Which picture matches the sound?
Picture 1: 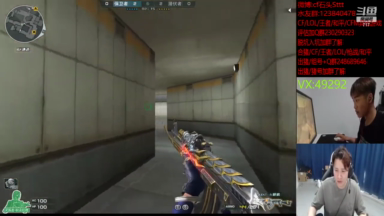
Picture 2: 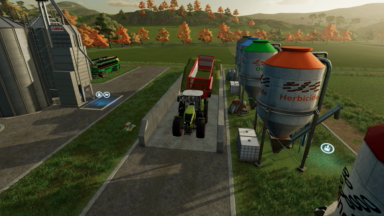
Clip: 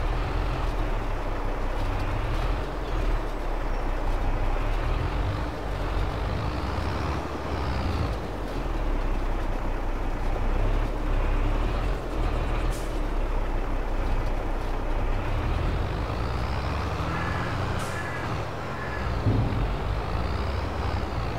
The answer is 2